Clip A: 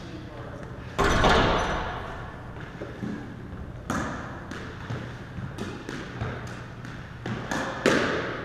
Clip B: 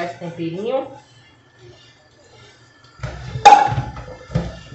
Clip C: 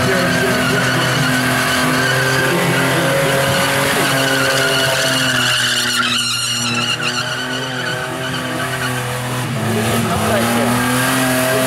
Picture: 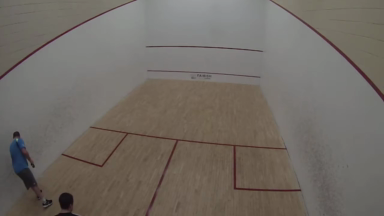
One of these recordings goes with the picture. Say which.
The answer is A